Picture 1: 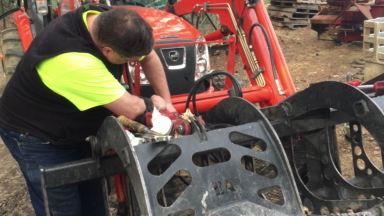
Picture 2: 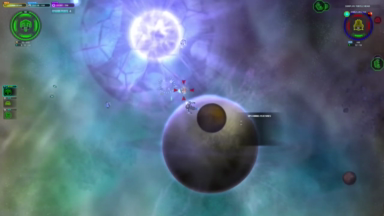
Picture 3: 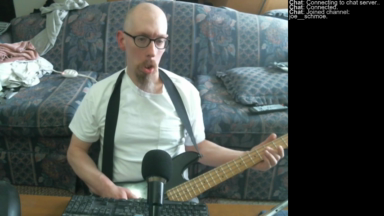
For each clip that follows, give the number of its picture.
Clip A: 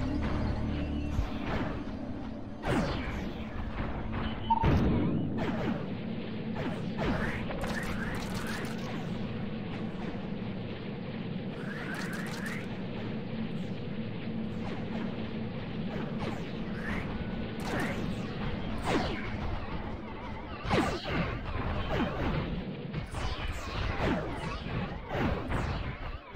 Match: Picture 2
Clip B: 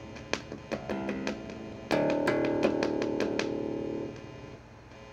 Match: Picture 3